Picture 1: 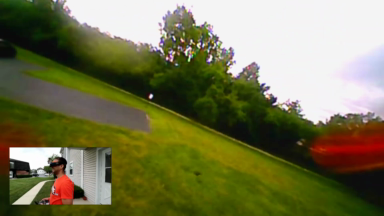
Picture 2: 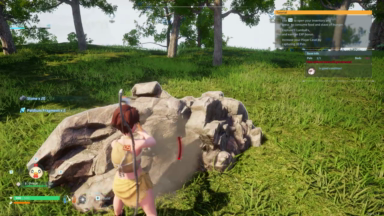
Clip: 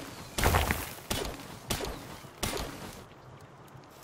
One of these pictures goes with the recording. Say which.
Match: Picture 2